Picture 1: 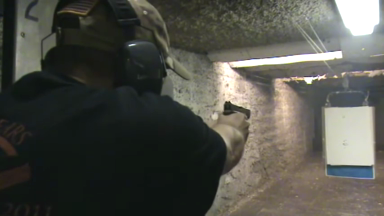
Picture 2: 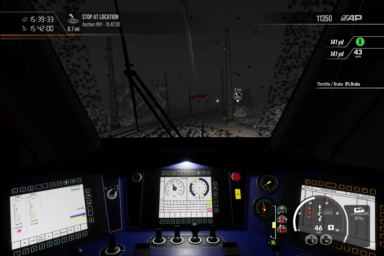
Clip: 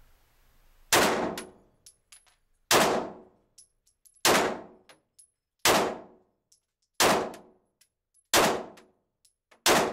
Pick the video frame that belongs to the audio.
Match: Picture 1